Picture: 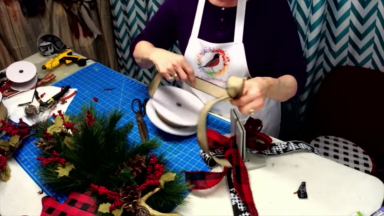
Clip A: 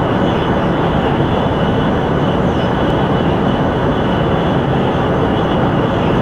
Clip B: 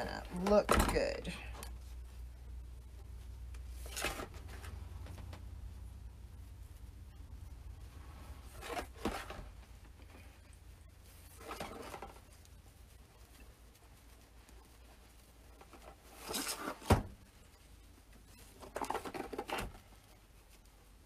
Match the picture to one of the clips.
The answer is B